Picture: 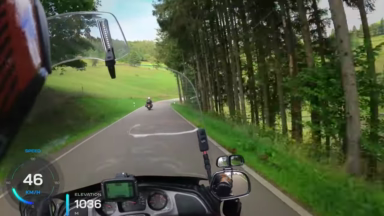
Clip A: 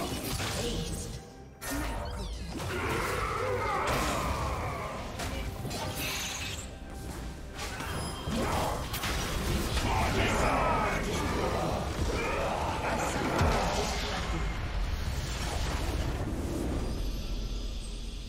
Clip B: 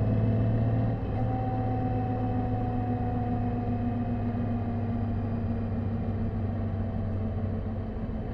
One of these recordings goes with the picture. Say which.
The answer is B